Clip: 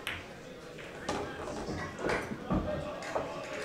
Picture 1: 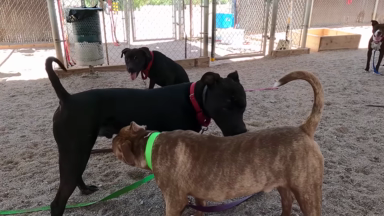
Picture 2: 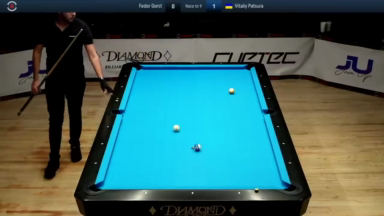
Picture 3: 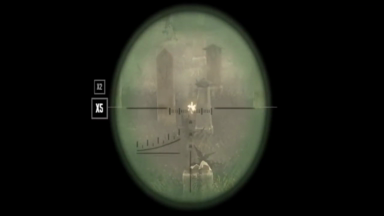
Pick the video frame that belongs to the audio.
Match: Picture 2